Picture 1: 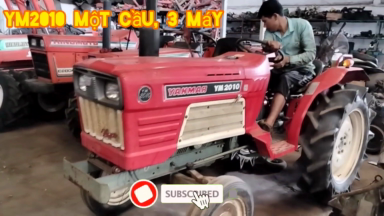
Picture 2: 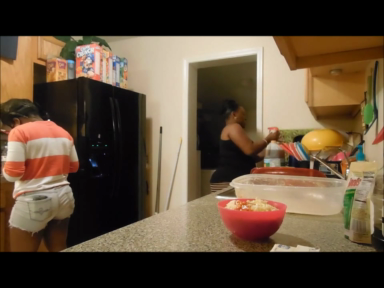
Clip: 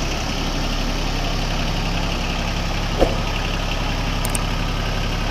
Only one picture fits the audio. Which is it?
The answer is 1